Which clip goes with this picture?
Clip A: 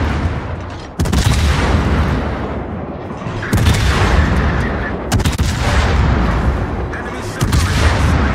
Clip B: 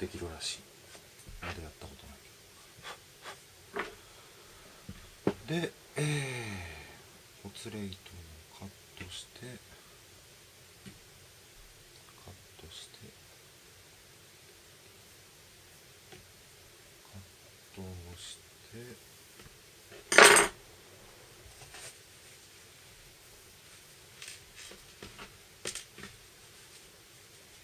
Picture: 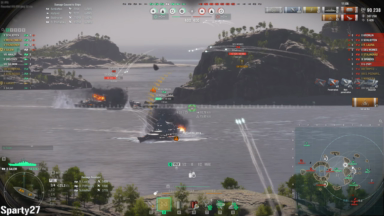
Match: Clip A